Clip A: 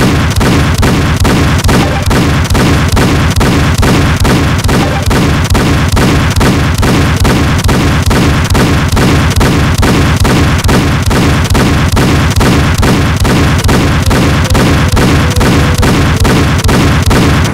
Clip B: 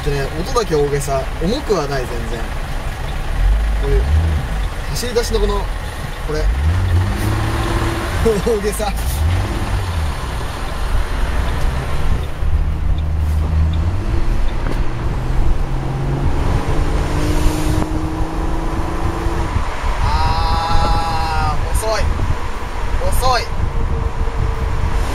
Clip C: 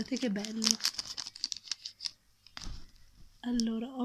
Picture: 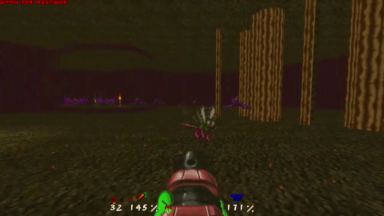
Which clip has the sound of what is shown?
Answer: A